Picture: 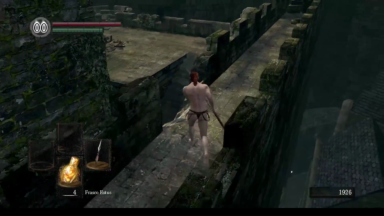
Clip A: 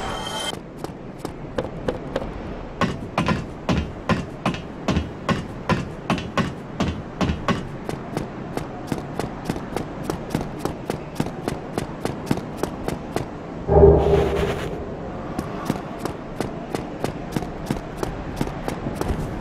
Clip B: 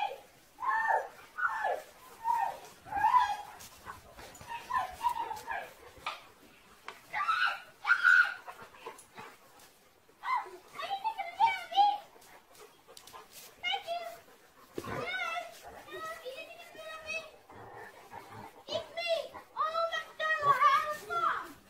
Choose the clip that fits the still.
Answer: A